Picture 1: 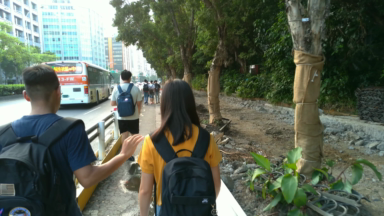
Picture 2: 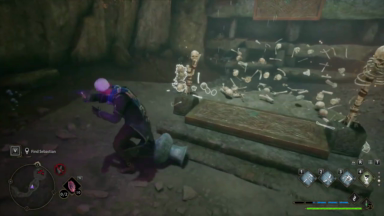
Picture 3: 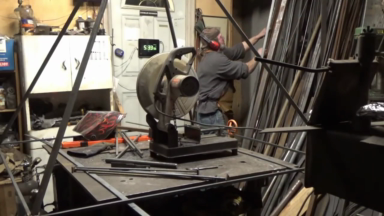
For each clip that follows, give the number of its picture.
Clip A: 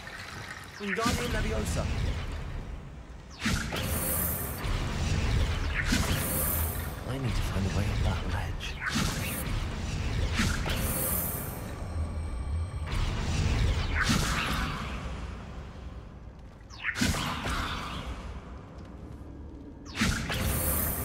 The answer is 2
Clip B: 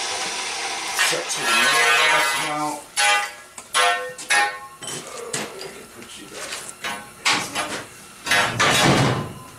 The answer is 3